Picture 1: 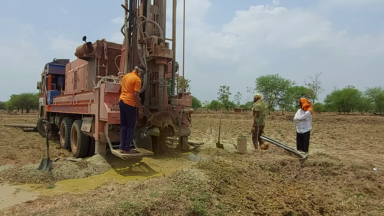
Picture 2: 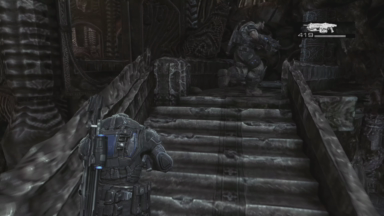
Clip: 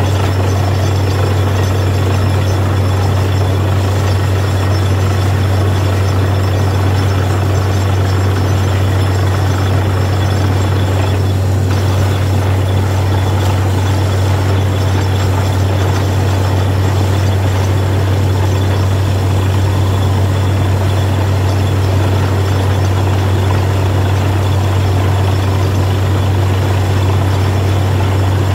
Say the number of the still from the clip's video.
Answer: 1